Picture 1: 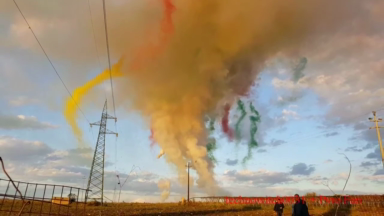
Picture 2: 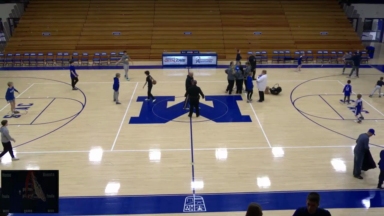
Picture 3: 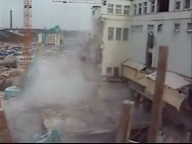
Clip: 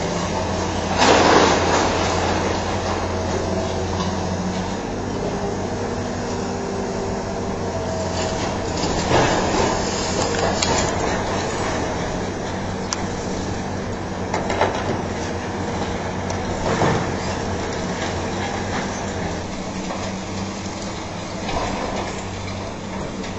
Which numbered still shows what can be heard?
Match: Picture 3